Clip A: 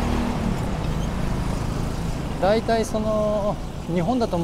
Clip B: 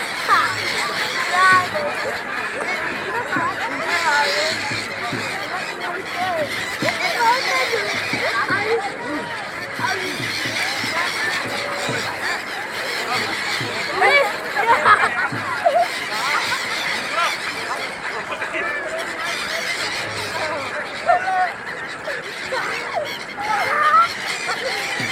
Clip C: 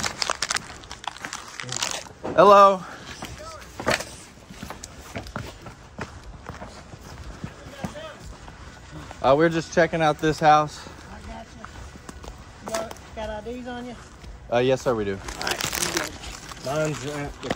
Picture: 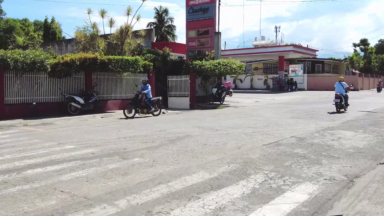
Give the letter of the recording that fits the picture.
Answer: A